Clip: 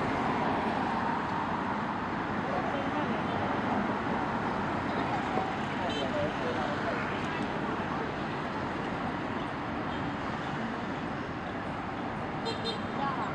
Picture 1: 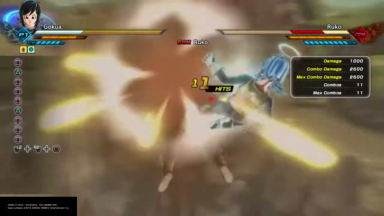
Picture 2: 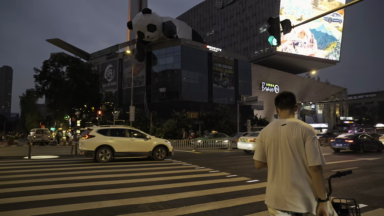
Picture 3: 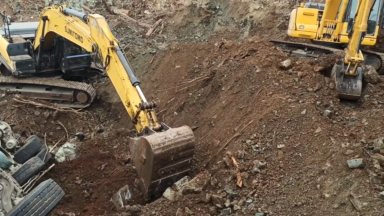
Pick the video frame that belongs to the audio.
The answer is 2